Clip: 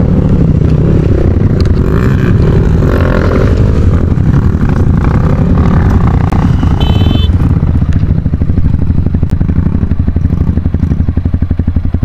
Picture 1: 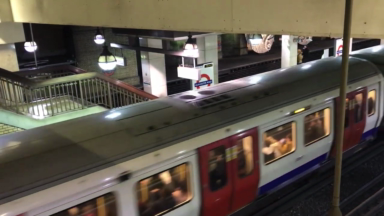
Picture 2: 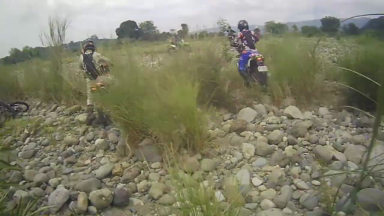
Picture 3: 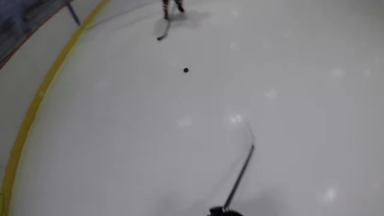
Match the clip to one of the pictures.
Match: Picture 2